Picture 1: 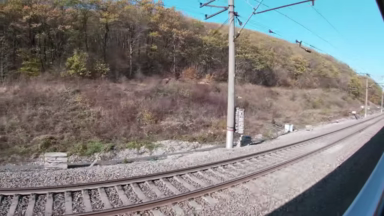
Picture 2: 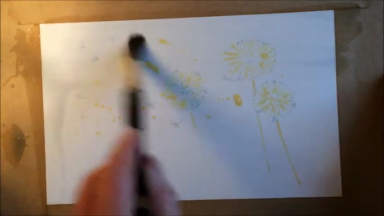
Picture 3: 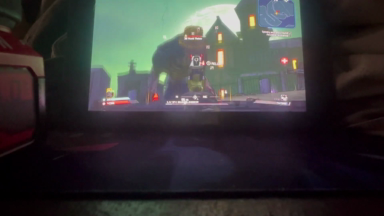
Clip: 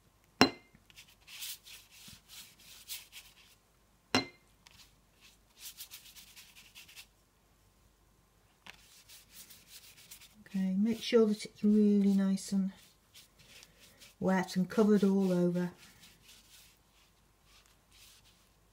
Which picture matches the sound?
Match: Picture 2